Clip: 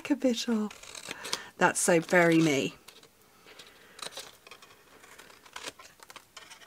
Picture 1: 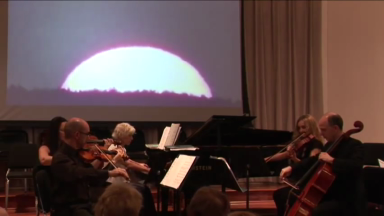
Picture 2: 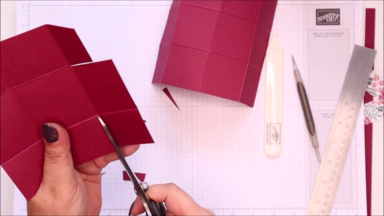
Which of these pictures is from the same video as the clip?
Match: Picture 2